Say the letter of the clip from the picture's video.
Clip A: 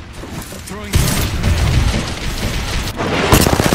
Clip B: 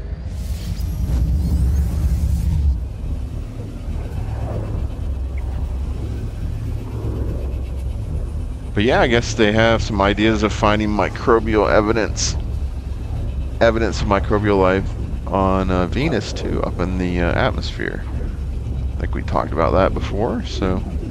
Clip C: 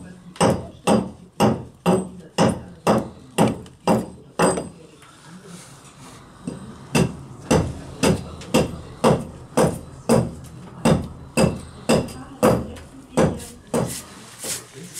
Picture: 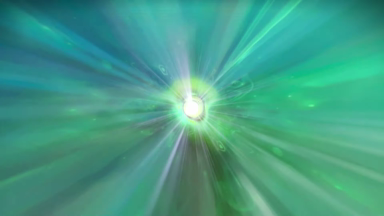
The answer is B